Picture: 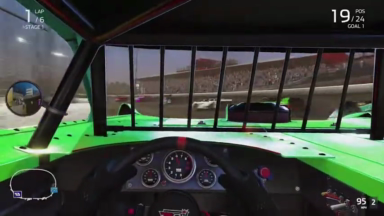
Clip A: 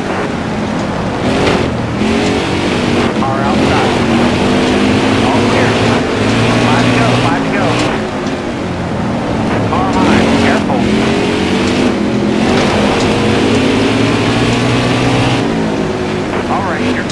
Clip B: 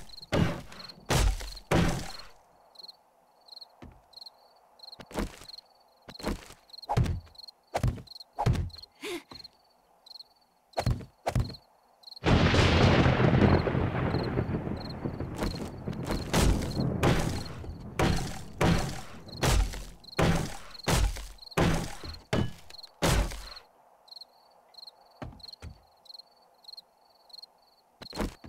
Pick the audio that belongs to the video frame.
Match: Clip A